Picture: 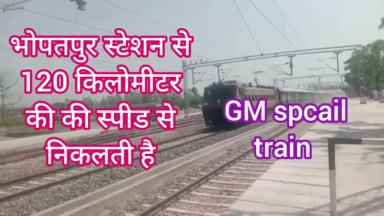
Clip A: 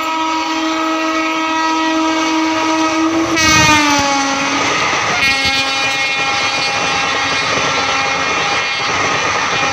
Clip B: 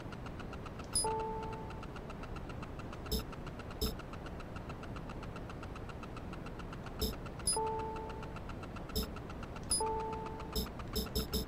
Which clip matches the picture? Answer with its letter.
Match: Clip A